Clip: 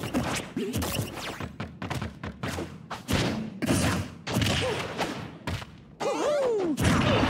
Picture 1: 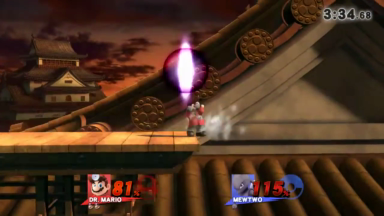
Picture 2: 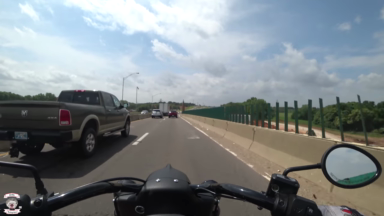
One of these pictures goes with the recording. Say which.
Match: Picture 1